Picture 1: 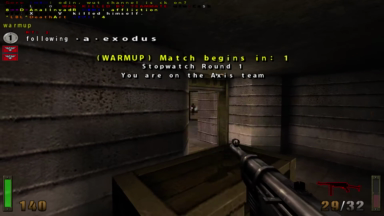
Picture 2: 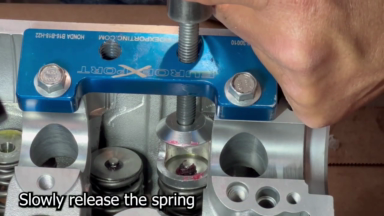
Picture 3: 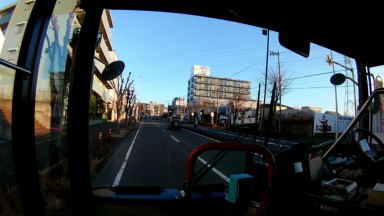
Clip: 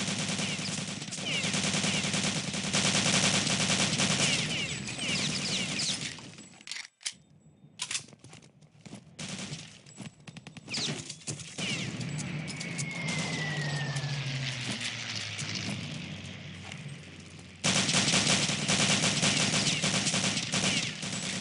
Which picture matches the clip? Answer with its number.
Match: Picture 1